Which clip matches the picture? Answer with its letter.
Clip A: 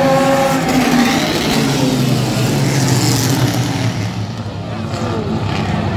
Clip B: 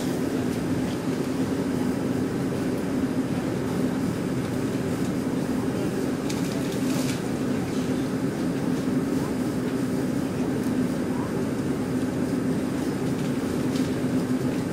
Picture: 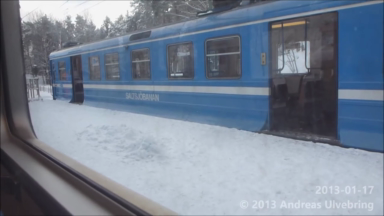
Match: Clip B